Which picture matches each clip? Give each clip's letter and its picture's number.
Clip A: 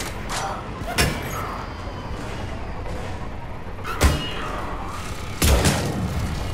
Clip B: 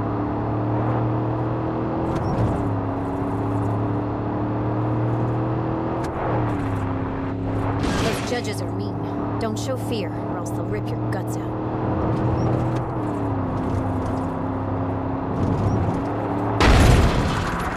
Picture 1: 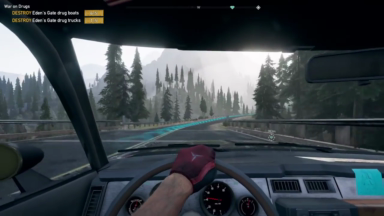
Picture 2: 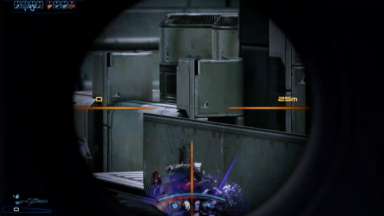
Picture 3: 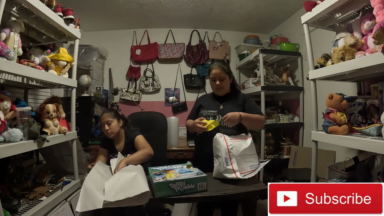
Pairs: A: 2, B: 1